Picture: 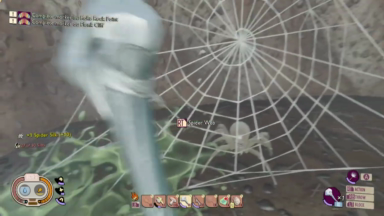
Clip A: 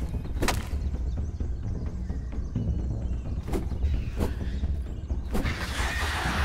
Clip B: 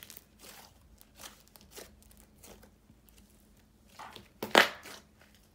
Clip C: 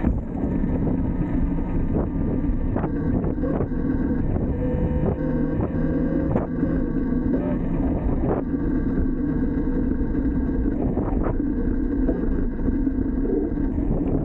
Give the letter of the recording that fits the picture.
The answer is A